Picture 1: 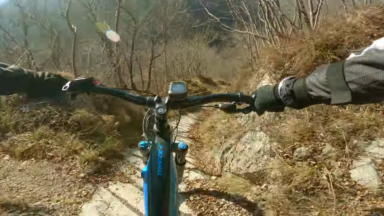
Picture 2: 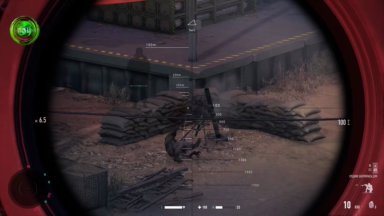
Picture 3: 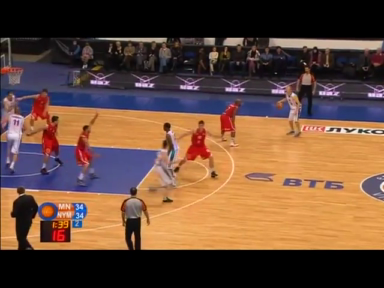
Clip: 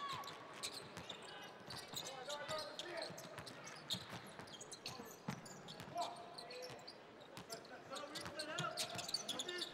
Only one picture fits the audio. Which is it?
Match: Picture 3